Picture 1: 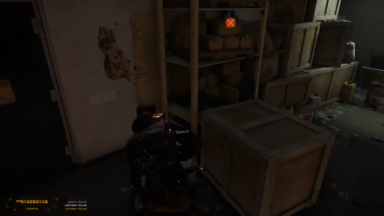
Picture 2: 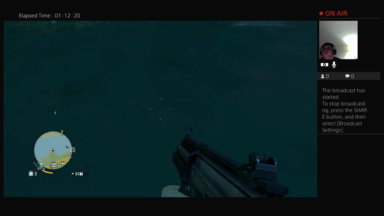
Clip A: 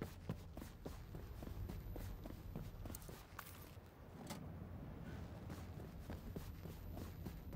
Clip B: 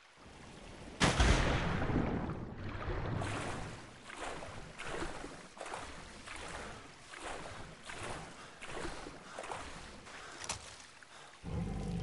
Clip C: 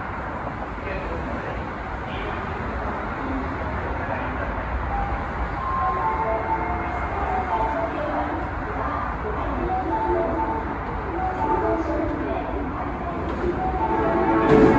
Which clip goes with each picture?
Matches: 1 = A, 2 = B